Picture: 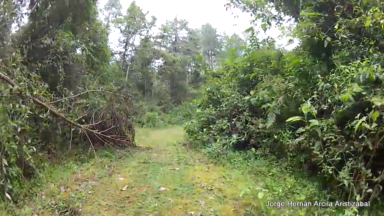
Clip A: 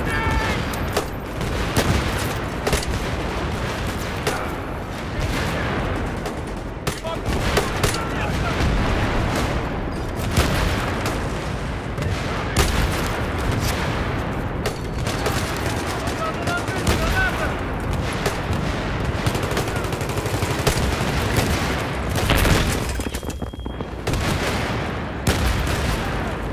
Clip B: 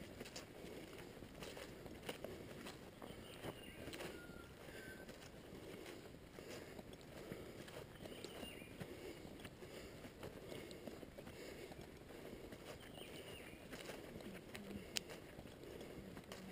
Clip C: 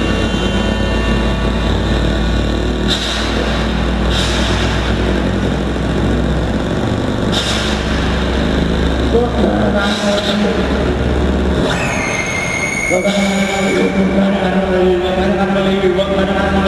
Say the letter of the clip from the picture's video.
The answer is B